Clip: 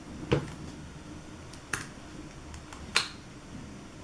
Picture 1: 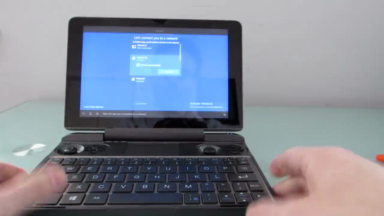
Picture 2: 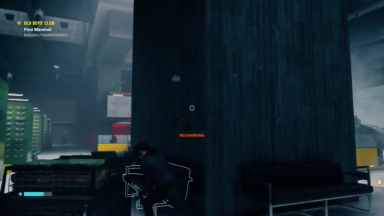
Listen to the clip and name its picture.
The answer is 1